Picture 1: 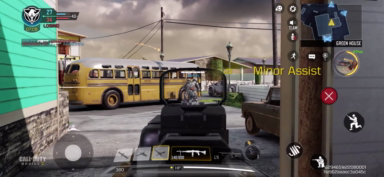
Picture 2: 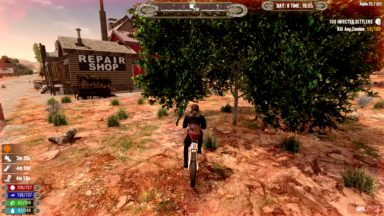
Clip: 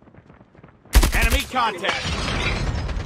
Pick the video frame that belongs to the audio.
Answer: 1